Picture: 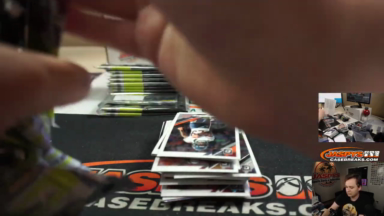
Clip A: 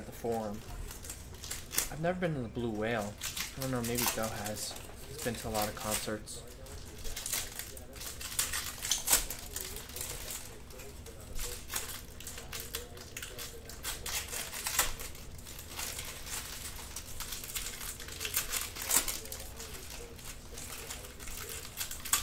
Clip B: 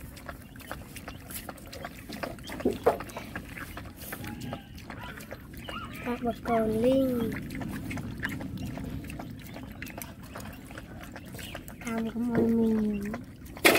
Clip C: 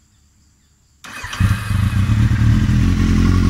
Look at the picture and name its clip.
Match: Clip A